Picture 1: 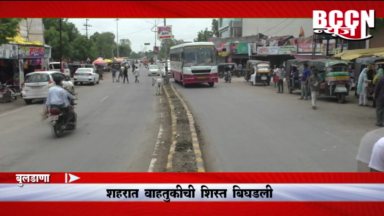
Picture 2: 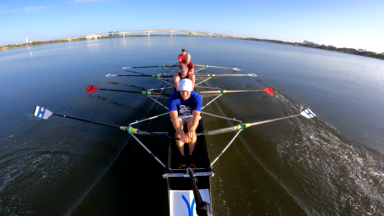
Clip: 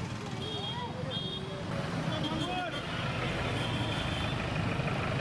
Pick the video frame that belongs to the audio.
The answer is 1